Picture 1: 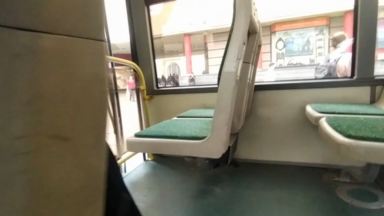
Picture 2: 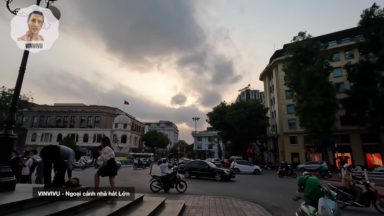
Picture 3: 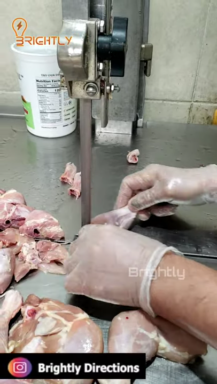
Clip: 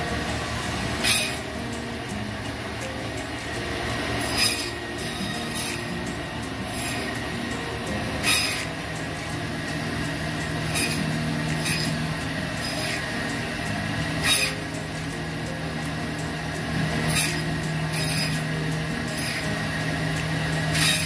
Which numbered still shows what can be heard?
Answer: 3